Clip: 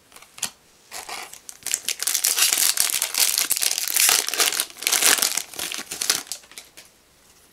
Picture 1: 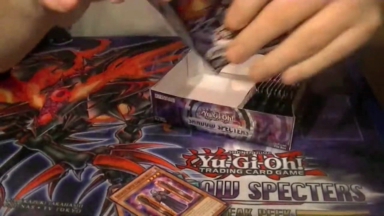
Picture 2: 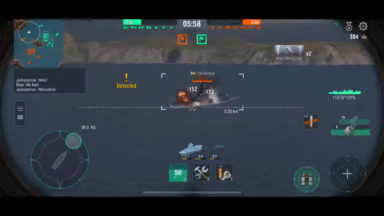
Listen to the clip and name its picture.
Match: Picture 1